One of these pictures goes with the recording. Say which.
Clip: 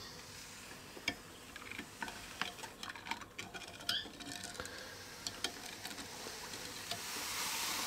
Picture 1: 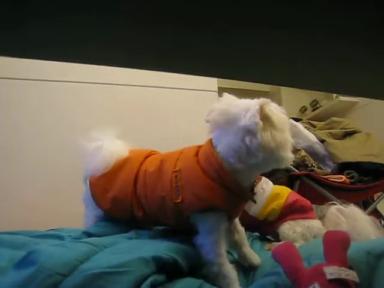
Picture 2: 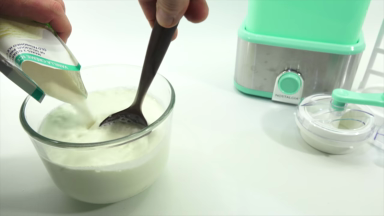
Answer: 2